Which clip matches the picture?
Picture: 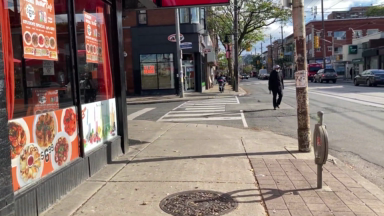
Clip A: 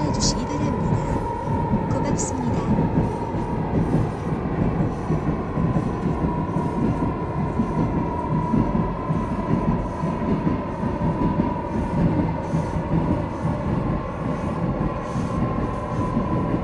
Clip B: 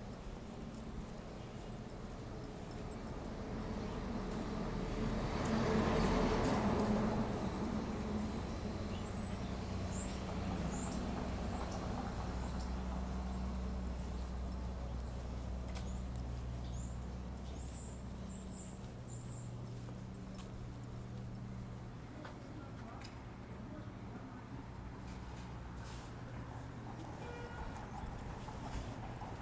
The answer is B